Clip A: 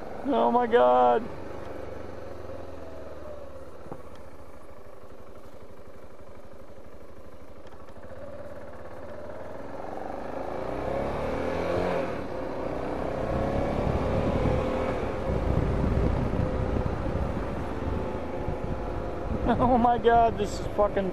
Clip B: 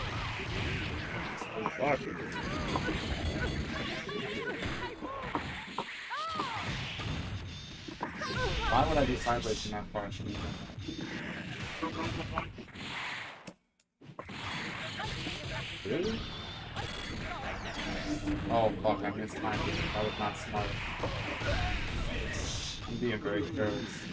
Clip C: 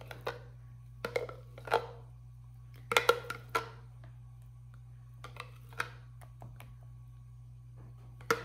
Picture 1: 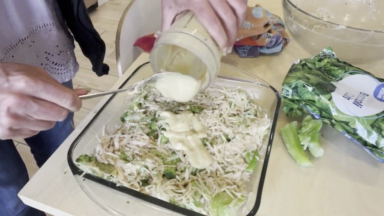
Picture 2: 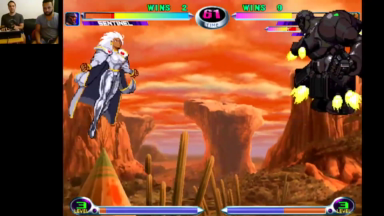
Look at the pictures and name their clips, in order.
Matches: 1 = C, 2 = B